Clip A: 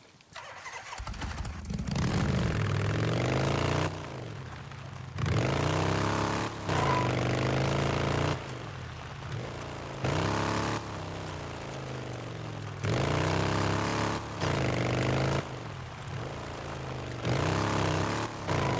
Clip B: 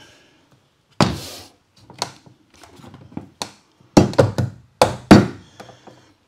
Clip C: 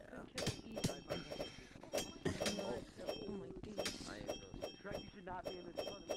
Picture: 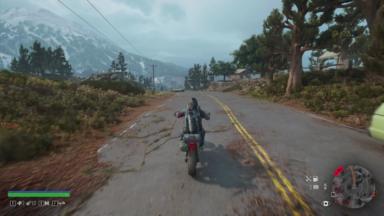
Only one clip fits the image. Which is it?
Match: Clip A